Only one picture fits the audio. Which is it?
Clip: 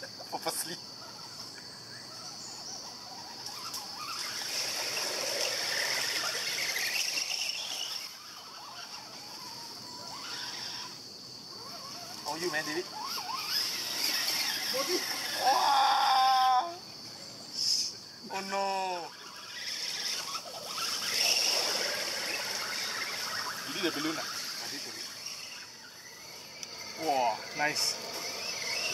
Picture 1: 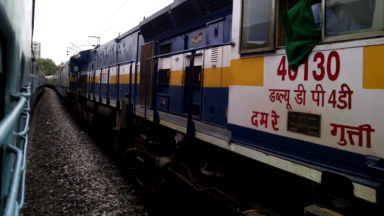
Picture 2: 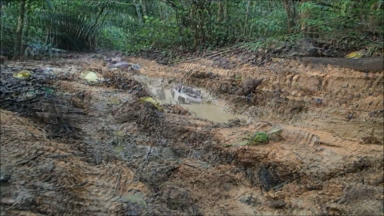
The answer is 2